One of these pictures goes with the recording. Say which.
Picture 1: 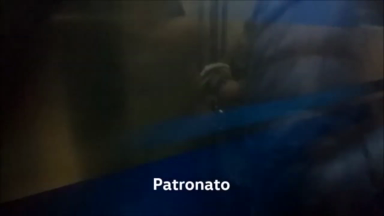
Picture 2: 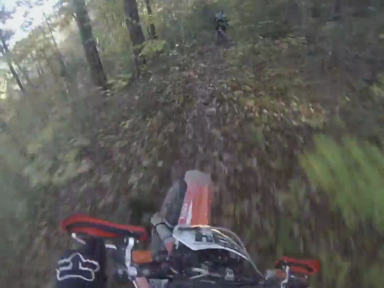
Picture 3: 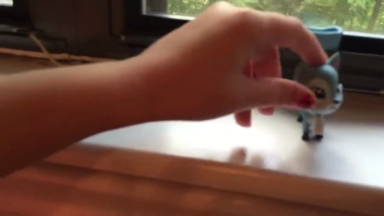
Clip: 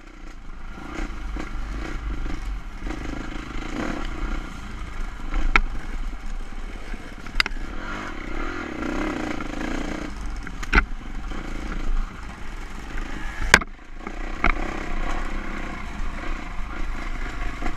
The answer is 2